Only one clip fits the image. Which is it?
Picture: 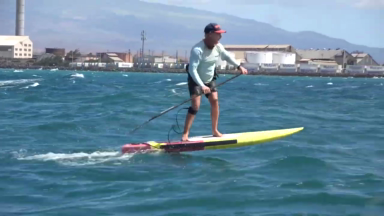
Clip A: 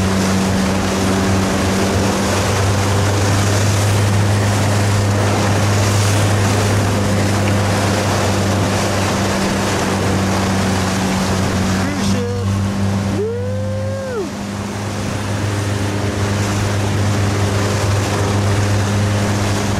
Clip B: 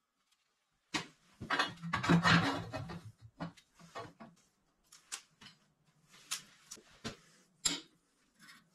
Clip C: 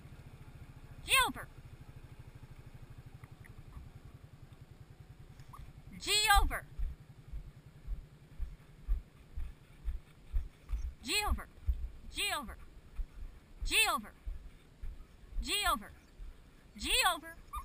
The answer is A